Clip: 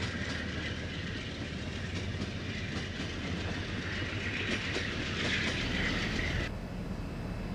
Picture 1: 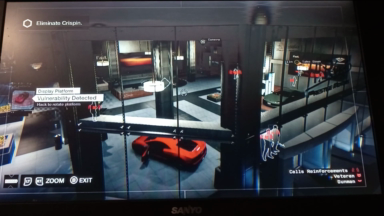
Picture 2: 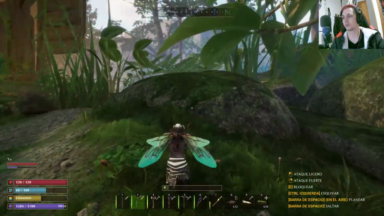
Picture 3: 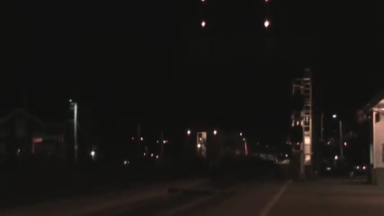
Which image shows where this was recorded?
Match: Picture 3